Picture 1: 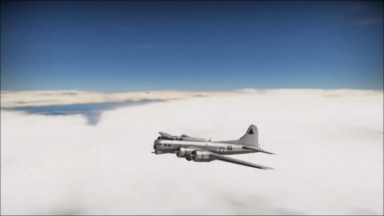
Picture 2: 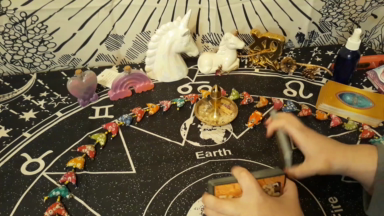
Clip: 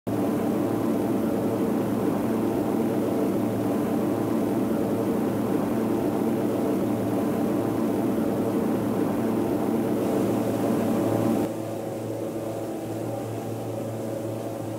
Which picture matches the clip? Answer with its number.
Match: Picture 1